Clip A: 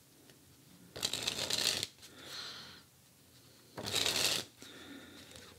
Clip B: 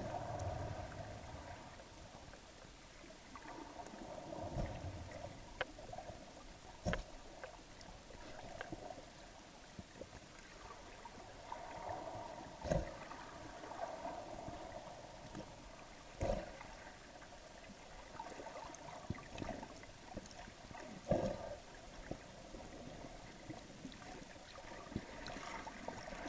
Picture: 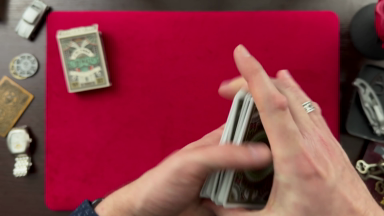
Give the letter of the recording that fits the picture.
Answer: A